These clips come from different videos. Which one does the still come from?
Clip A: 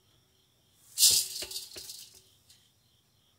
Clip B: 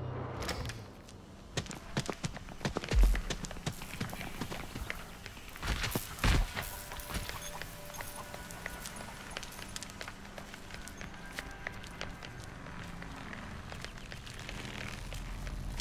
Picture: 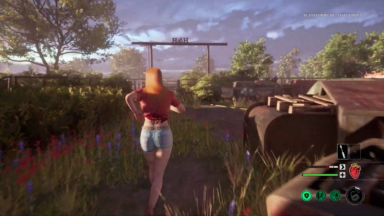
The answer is B